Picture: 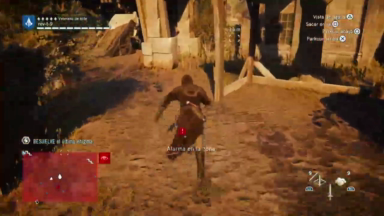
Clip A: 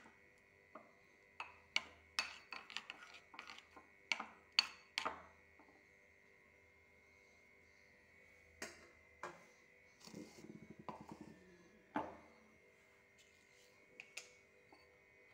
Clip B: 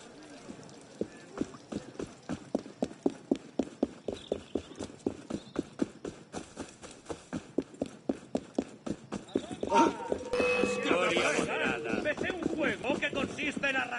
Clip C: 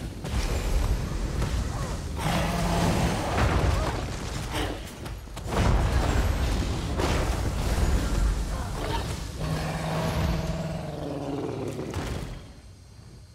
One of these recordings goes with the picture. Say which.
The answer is B